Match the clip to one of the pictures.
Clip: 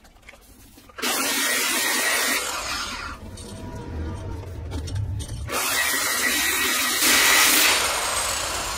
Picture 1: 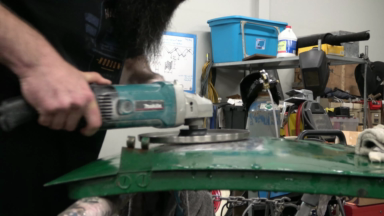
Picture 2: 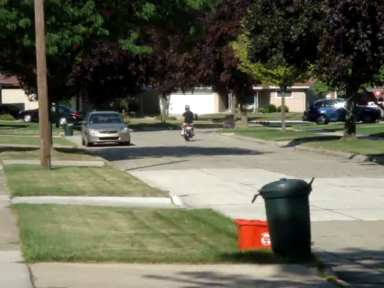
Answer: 1